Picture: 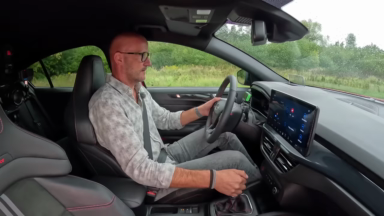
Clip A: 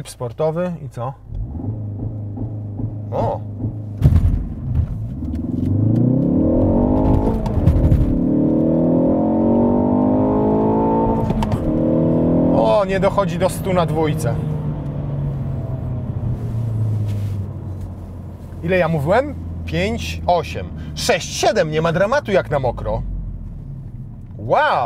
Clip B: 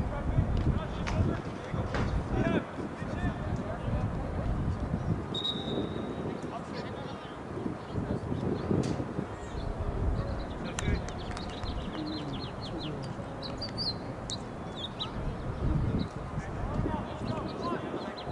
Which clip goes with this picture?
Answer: A